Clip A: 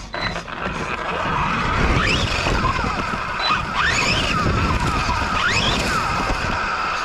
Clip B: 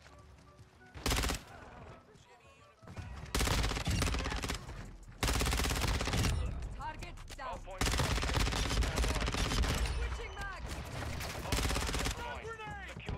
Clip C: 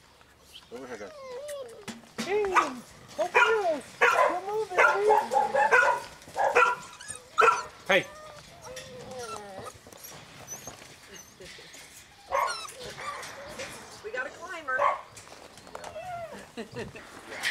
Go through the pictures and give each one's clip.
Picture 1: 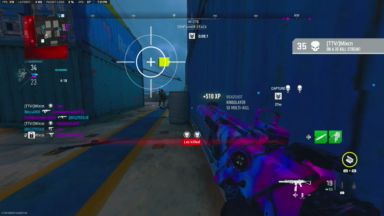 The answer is B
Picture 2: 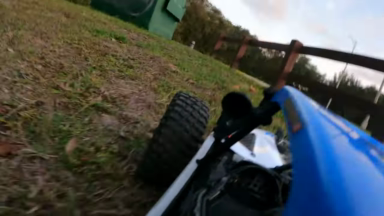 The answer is A